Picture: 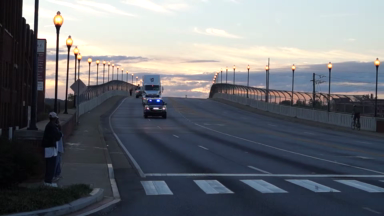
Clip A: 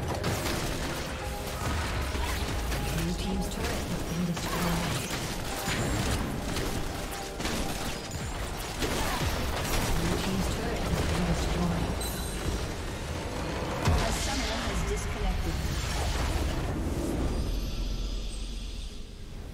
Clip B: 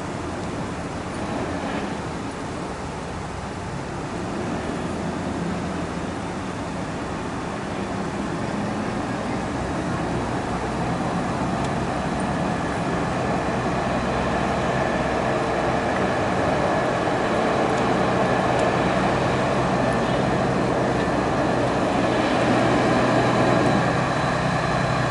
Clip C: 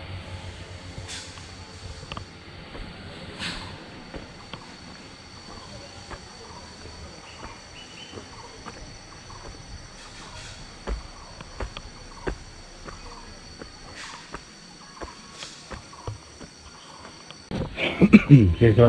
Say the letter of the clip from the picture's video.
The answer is B